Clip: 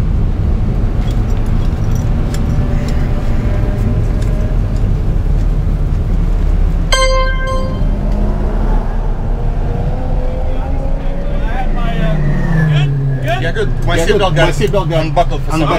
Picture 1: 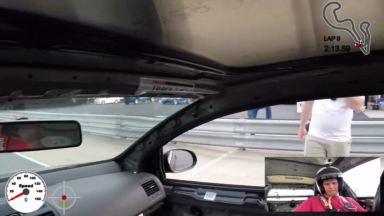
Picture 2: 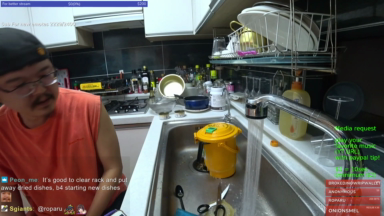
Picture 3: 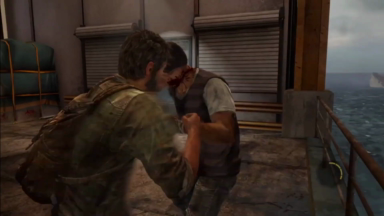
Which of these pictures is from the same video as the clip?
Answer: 1